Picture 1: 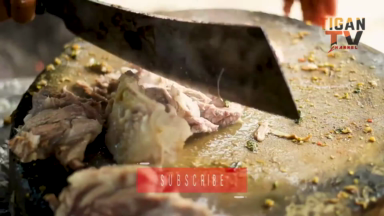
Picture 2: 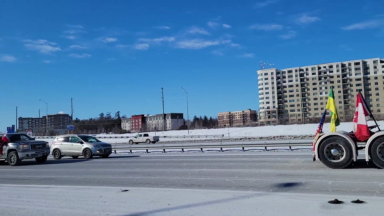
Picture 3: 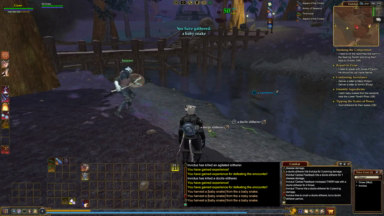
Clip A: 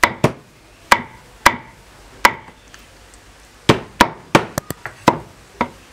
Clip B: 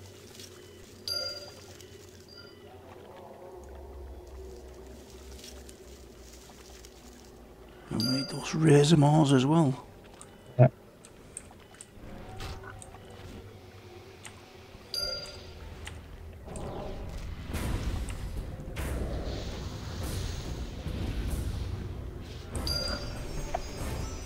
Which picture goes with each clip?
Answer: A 1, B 3